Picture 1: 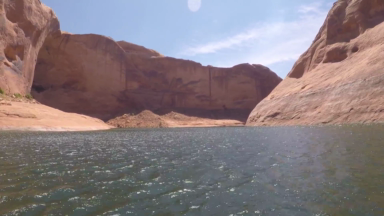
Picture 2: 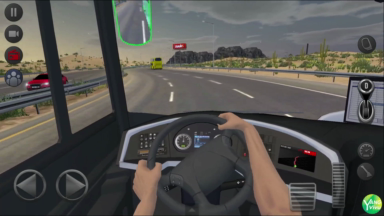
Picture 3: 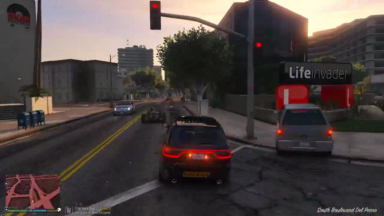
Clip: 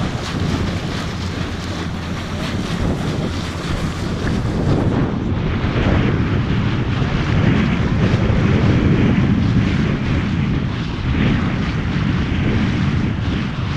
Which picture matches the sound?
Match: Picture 1